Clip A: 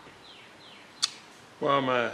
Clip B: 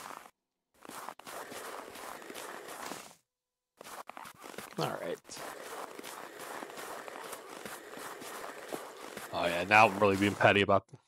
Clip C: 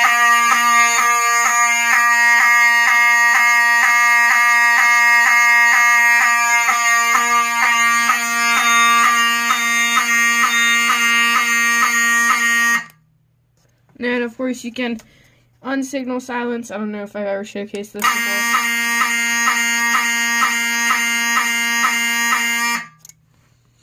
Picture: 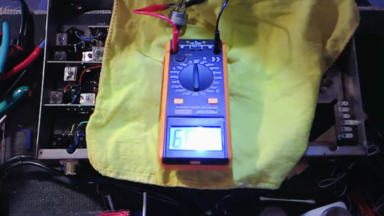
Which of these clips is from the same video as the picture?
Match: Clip A